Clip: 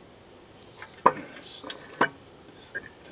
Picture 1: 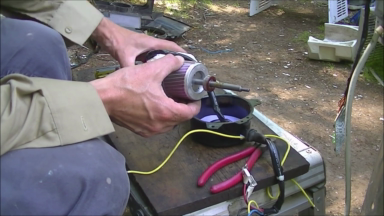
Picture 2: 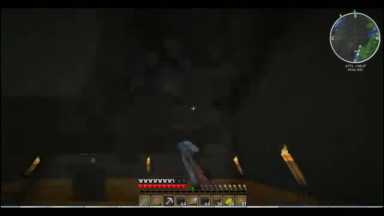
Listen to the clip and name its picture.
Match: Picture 1